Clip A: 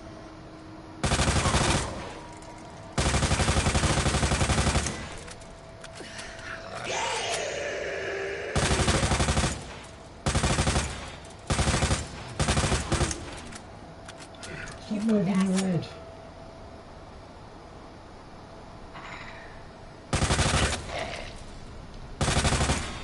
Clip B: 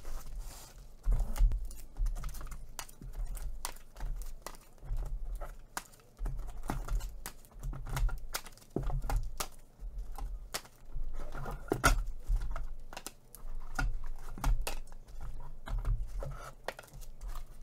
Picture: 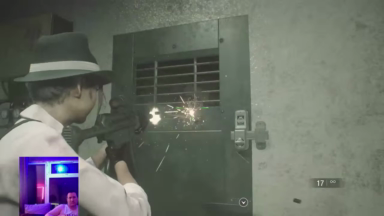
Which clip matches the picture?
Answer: A